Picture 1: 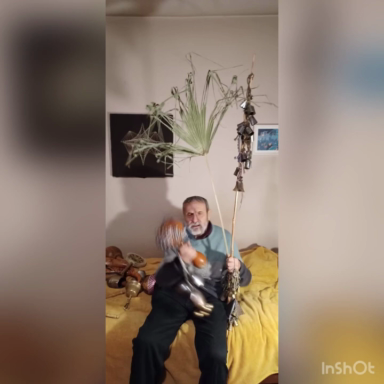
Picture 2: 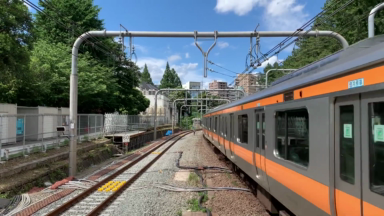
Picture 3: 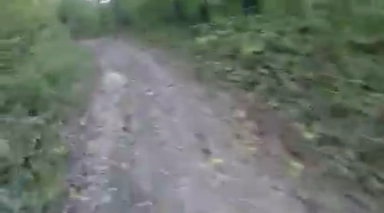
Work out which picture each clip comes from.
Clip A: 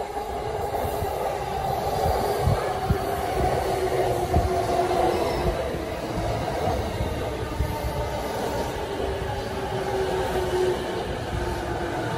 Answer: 2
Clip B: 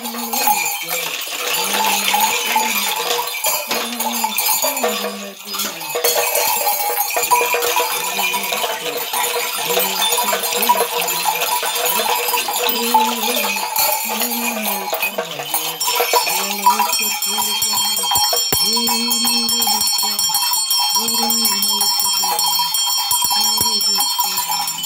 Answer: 1